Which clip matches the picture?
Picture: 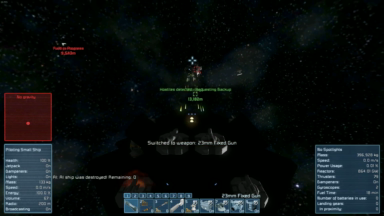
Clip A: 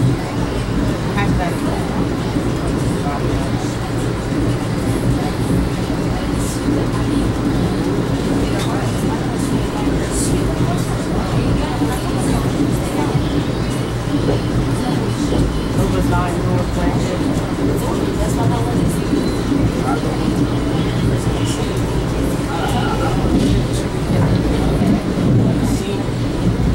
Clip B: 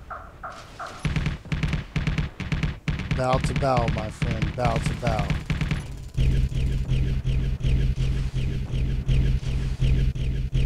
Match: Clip B